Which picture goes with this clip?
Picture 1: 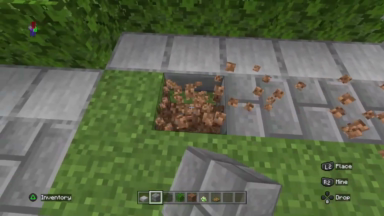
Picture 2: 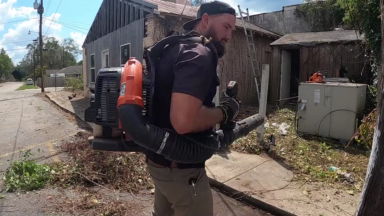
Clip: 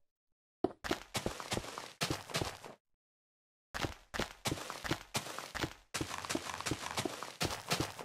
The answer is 1